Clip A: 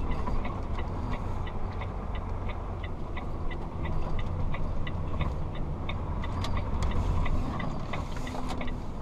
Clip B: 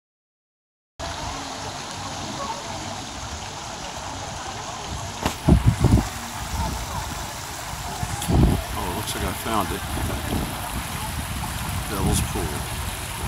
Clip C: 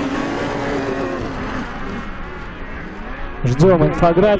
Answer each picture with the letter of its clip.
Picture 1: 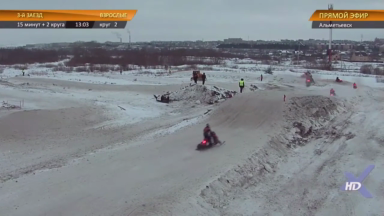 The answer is C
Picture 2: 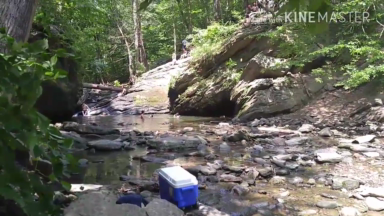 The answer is B